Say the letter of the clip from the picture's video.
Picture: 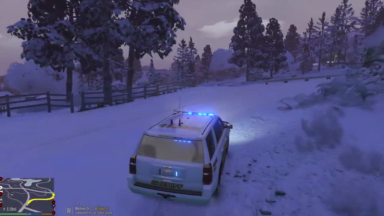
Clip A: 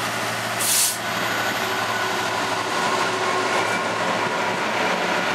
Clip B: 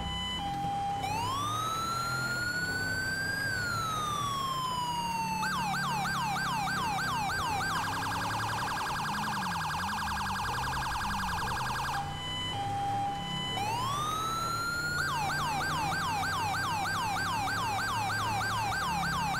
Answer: B